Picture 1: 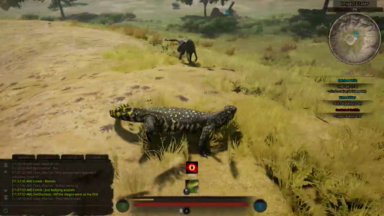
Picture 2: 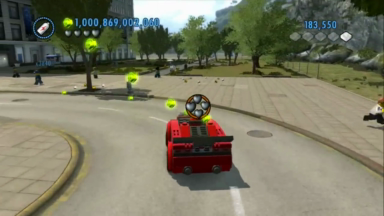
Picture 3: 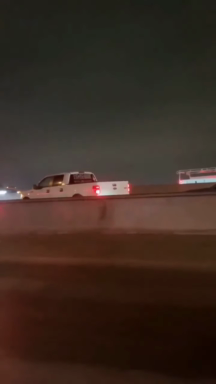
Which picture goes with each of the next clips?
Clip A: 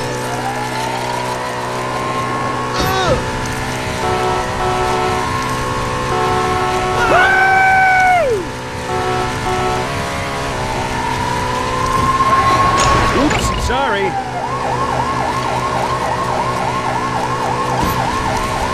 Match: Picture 2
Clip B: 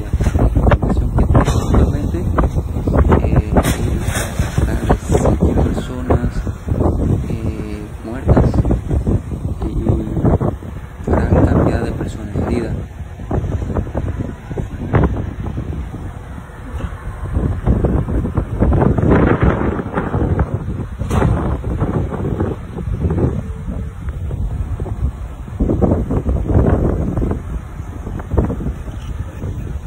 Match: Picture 3